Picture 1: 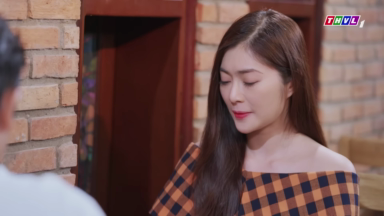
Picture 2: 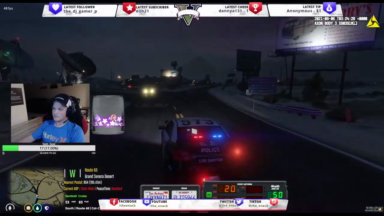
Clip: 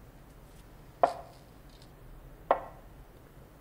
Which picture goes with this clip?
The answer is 1